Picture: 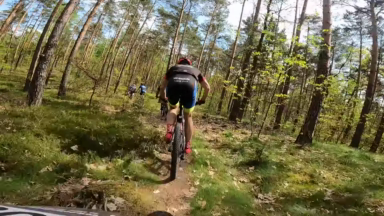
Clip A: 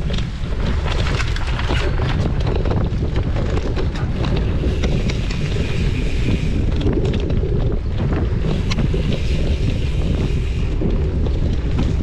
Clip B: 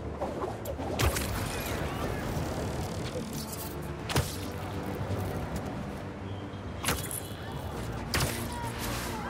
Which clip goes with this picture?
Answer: A